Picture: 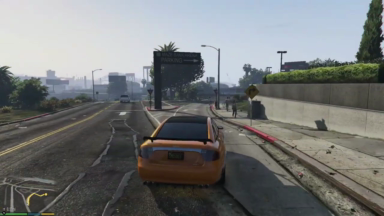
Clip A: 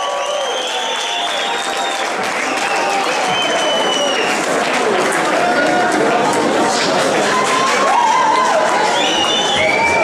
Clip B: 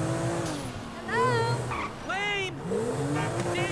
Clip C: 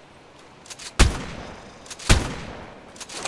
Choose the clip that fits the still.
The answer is B